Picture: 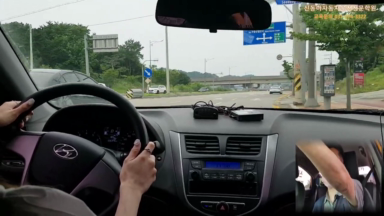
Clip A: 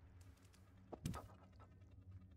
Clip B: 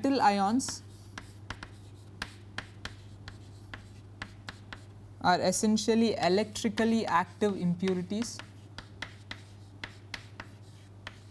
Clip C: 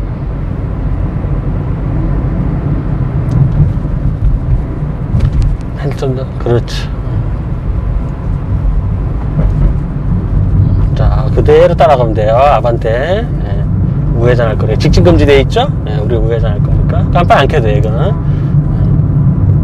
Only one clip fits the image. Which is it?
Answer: C